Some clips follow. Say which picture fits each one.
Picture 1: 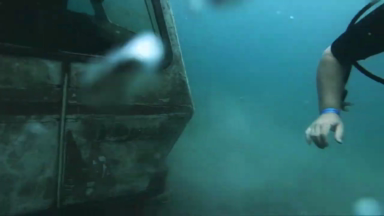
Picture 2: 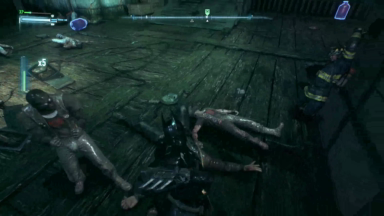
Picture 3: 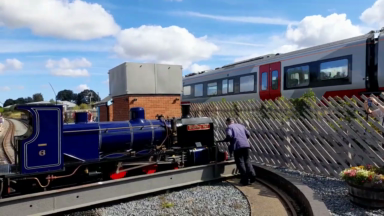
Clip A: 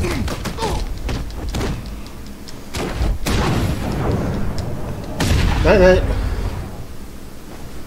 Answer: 2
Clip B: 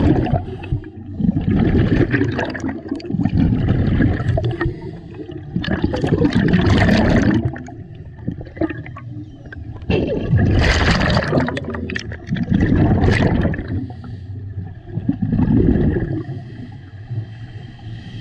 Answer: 1